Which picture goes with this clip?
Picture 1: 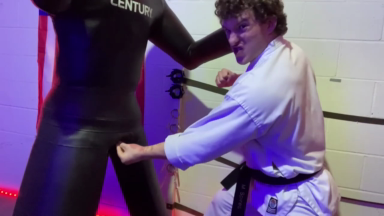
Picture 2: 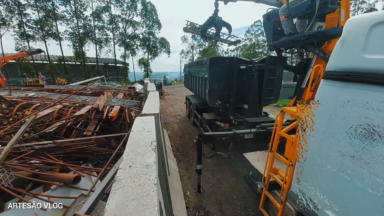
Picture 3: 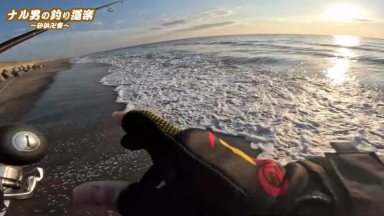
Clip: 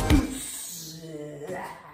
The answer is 1